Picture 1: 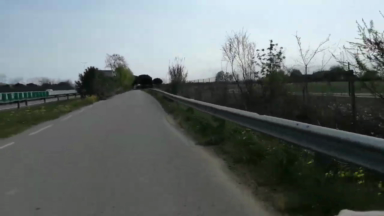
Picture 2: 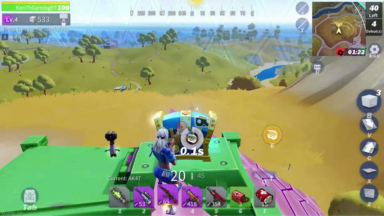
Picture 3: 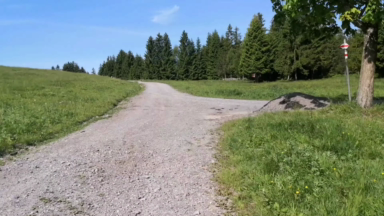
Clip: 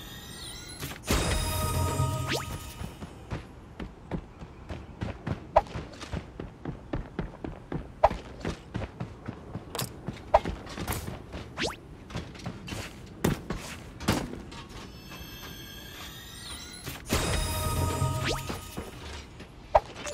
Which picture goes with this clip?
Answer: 2